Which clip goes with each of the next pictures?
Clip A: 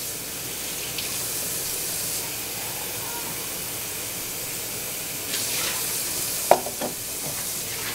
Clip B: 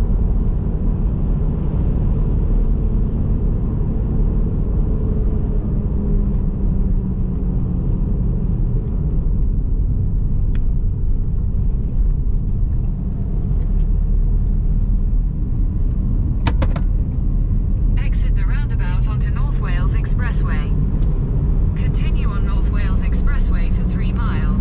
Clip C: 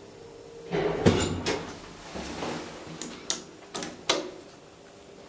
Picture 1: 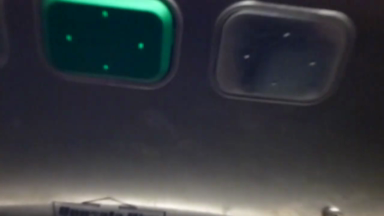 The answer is C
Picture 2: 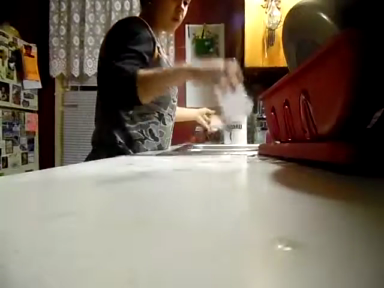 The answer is A